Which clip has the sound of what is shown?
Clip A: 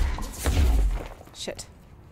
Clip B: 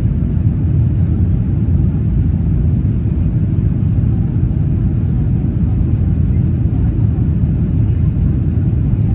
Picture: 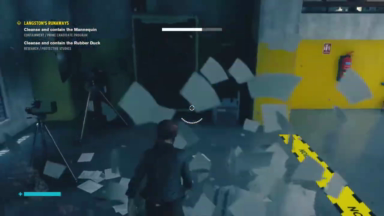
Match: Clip A